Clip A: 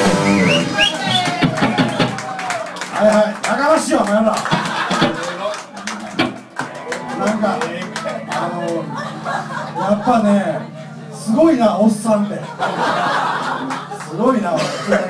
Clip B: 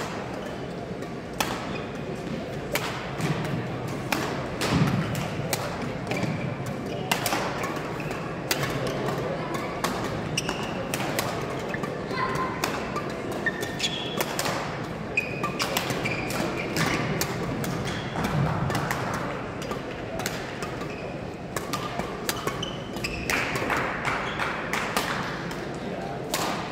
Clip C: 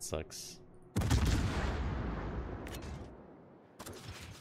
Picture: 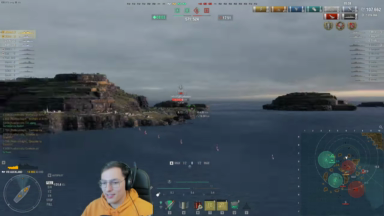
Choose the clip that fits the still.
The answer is C